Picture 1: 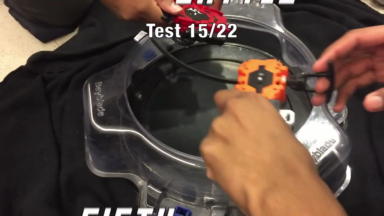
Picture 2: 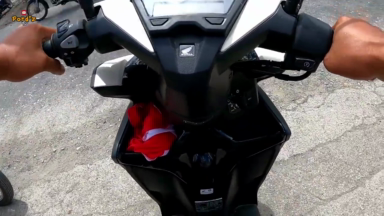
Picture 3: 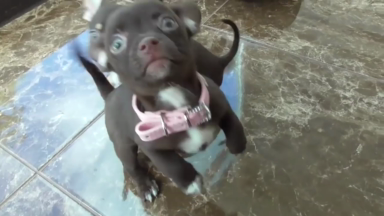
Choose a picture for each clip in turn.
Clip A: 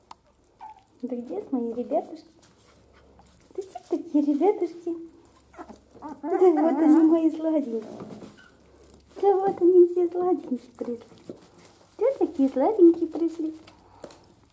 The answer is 3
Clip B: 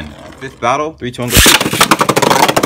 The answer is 1